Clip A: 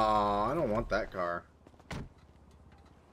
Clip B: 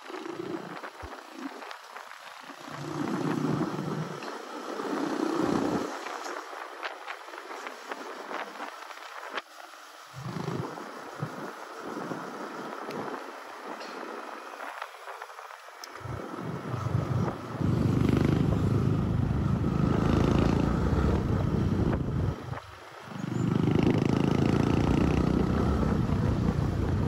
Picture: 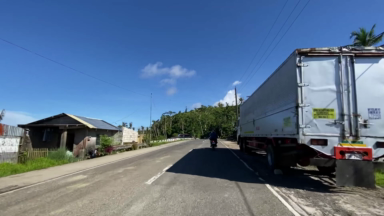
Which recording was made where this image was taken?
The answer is B